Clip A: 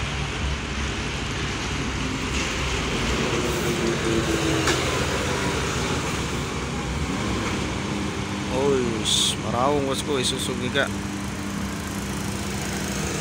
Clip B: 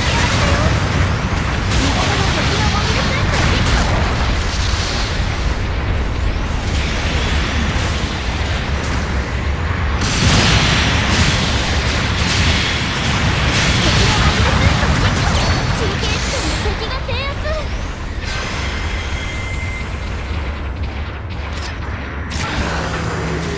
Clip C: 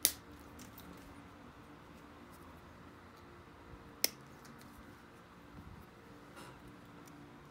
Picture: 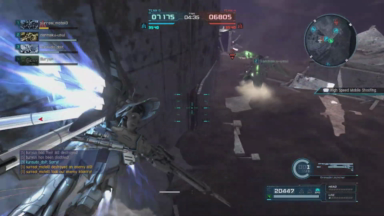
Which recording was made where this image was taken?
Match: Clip B